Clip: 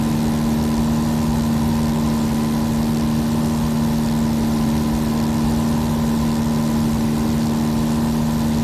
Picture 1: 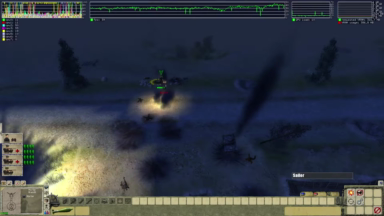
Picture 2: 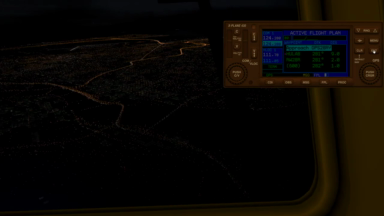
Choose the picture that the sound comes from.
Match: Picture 2